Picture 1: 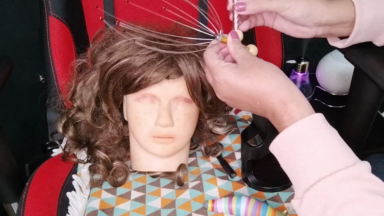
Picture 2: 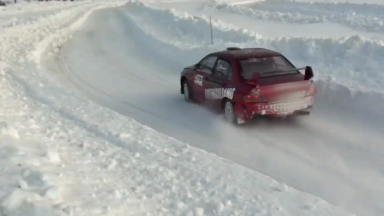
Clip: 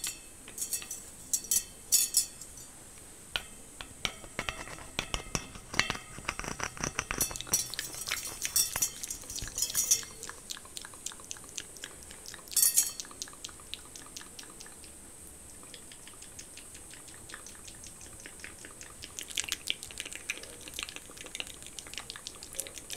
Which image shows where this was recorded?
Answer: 1